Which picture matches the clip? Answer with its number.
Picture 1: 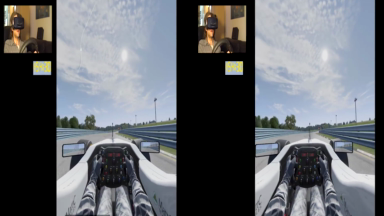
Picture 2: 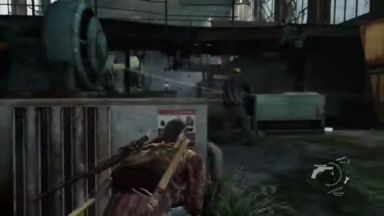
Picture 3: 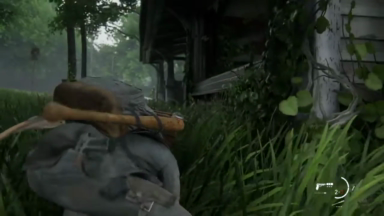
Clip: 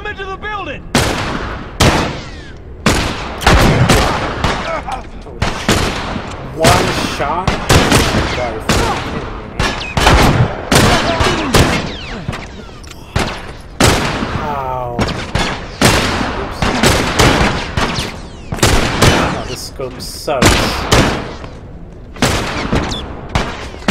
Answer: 2